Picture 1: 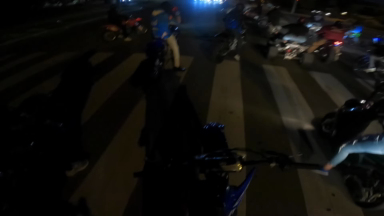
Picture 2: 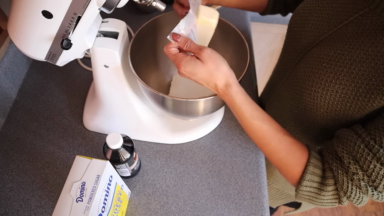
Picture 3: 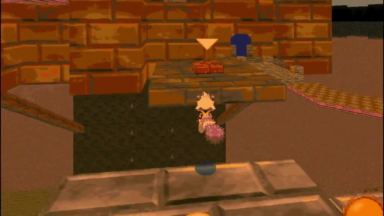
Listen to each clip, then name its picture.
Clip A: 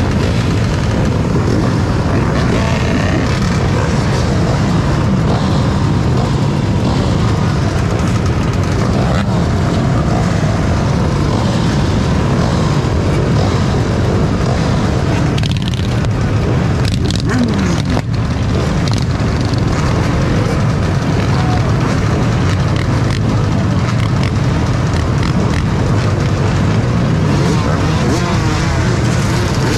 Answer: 1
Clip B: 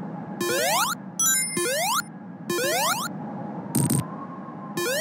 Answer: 3